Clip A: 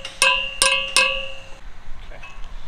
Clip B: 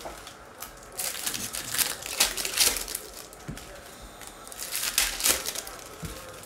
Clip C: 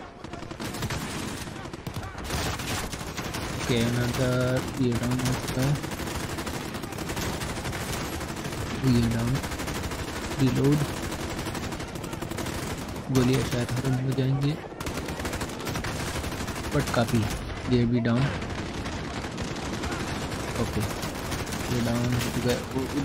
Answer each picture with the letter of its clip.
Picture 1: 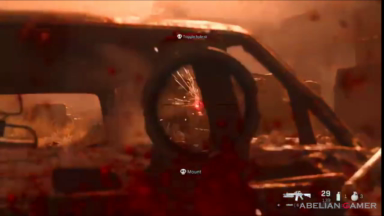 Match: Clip C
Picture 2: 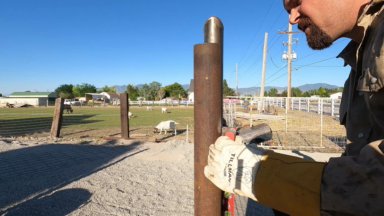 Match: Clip A